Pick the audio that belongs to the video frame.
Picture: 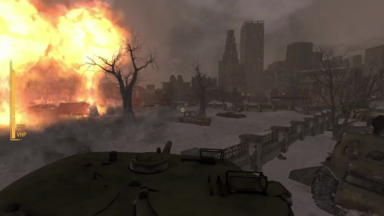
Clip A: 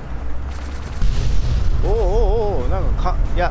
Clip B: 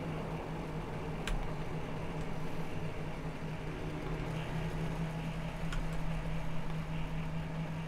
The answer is A